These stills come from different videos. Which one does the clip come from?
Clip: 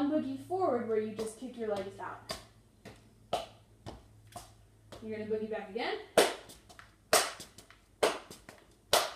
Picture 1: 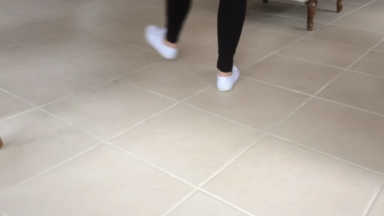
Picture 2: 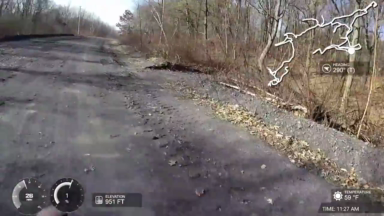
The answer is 1